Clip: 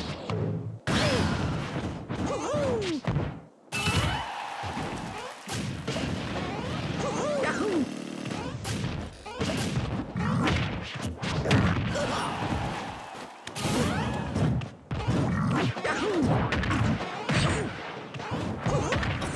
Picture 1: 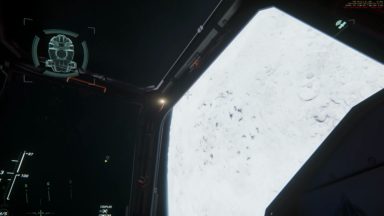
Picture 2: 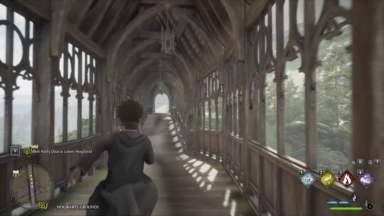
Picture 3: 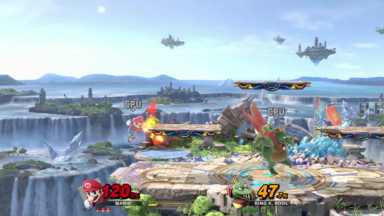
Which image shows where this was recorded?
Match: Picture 3